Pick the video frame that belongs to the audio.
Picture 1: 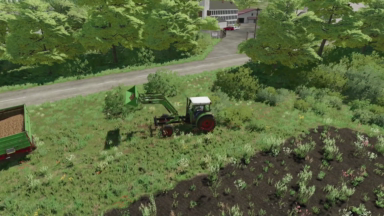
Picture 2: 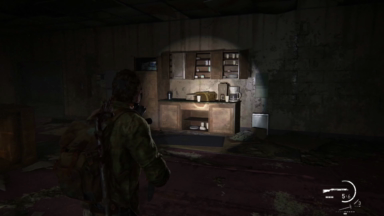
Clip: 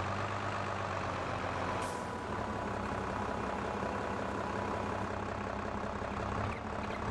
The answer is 1